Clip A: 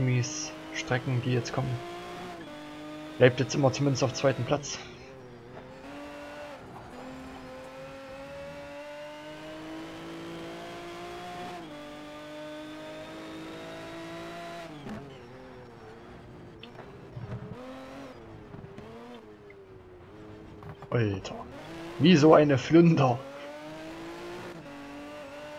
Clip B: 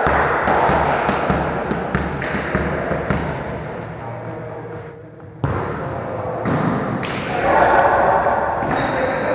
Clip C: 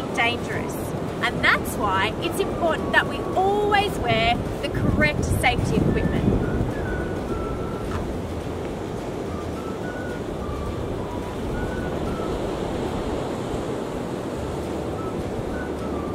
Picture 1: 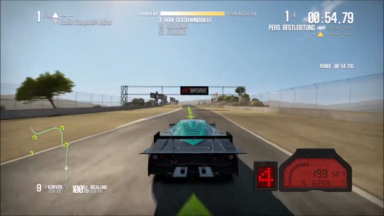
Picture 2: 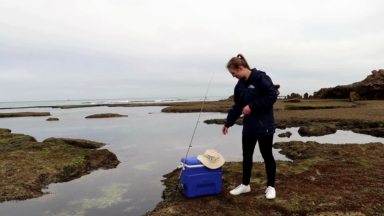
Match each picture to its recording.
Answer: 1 A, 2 C